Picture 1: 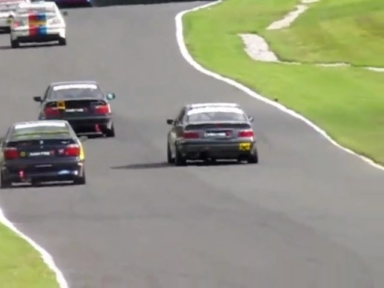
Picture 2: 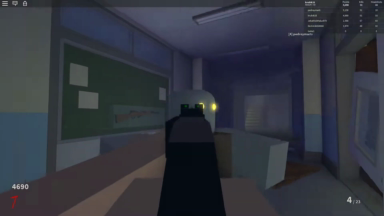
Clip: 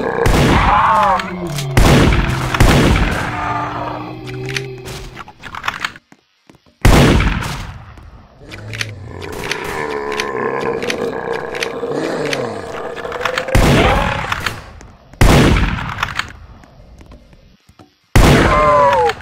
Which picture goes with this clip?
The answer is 2